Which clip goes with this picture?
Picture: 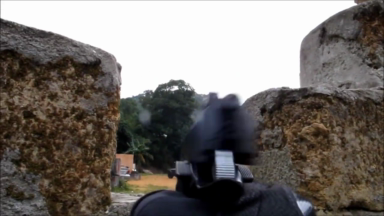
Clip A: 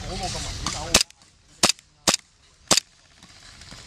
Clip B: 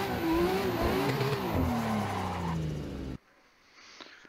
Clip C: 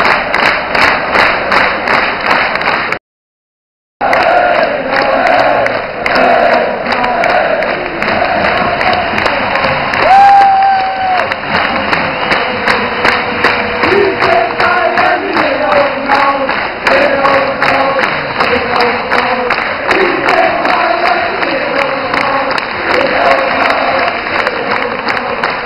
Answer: A